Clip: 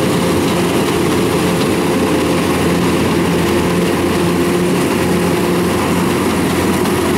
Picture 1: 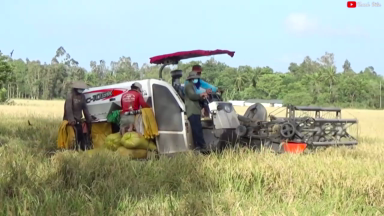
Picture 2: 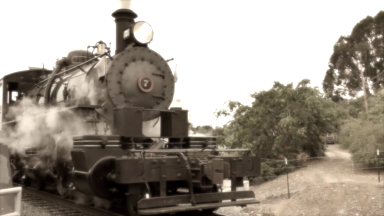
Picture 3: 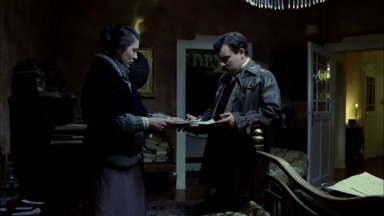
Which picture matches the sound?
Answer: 1